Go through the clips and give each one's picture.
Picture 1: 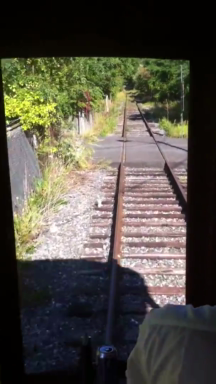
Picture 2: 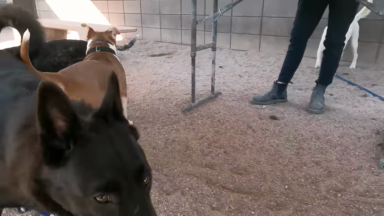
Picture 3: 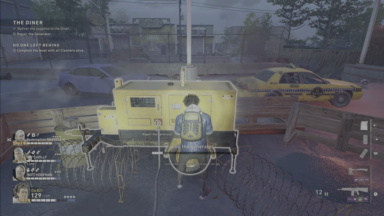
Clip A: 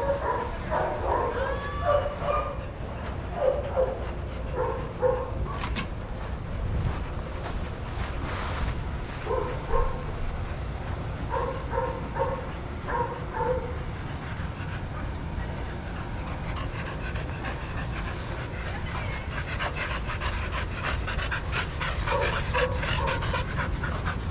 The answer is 2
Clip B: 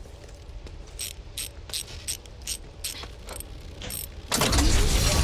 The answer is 3